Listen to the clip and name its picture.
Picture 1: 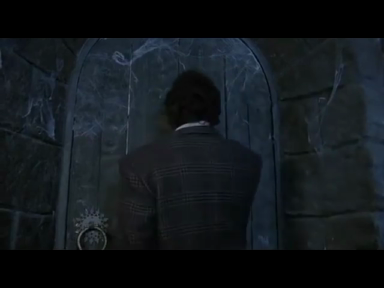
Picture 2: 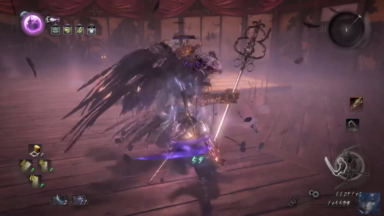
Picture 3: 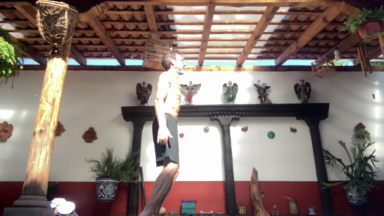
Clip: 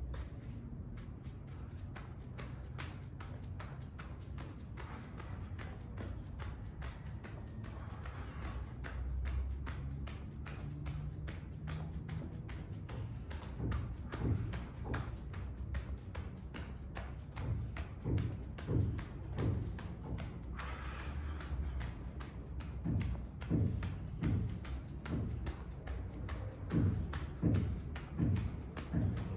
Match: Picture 3